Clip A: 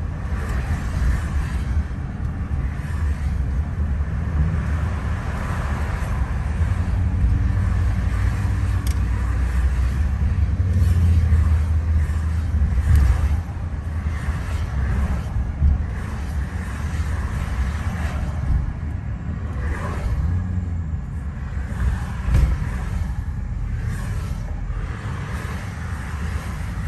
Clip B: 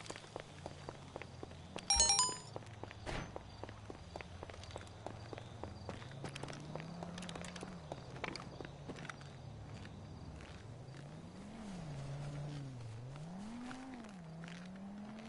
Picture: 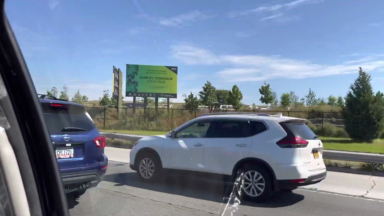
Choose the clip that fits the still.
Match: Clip A